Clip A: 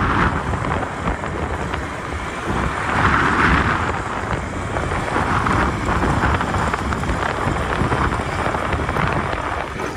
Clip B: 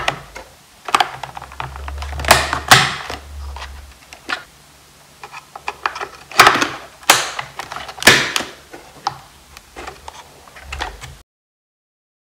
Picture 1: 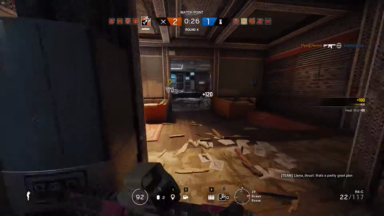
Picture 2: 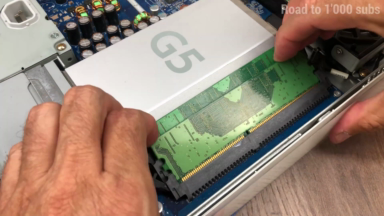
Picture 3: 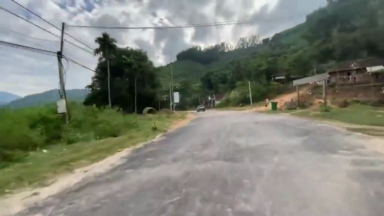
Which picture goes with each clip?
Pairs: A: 3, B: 2